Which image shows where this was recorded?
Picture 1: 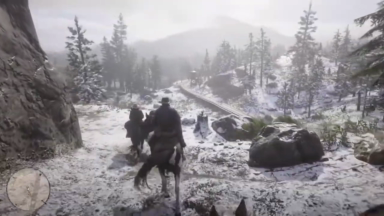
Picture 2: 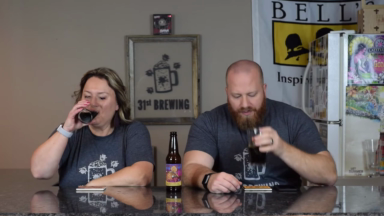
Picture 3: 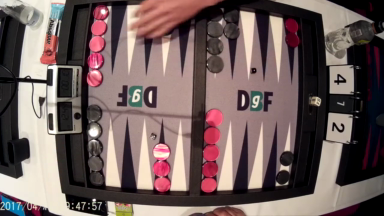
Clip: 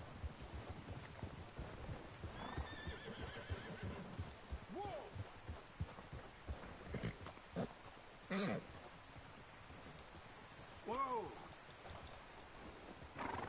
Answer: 1